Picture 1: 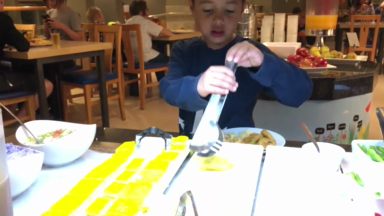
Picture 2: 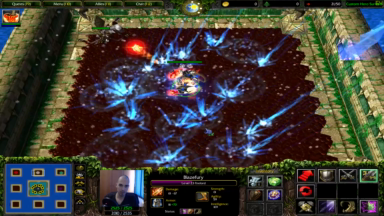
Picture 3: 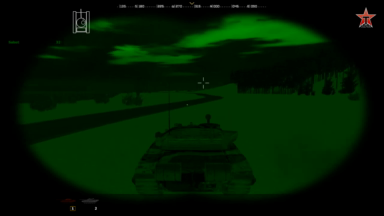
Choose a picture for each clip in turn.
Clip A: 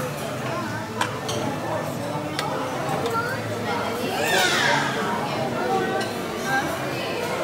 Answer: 1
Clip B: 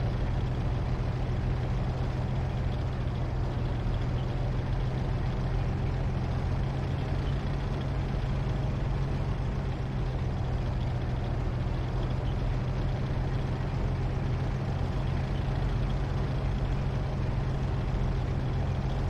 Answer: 3